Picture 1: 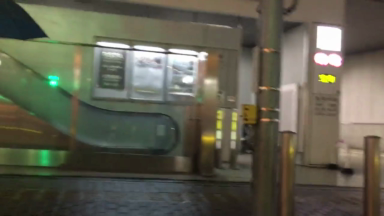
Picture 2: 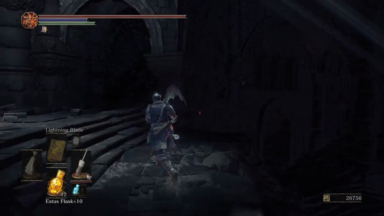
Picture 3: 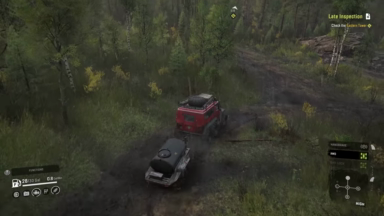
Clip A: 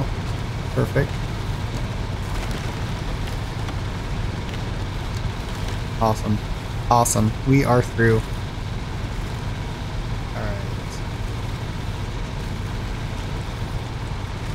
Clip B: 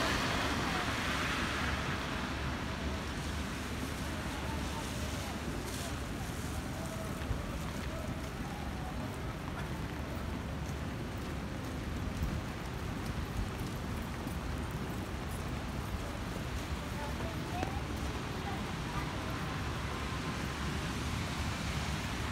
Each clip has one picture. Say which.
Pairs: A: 3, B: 1